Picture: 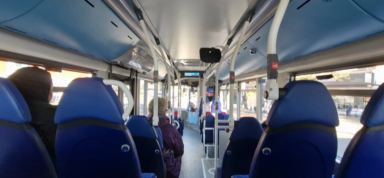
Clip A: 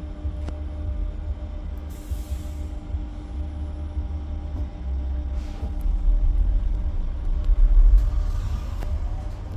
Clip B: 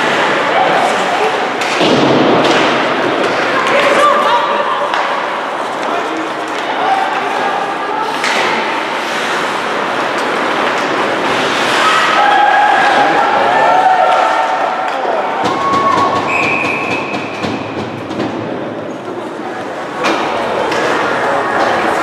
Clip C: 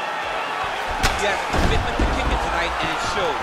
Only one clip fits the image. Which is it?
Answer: A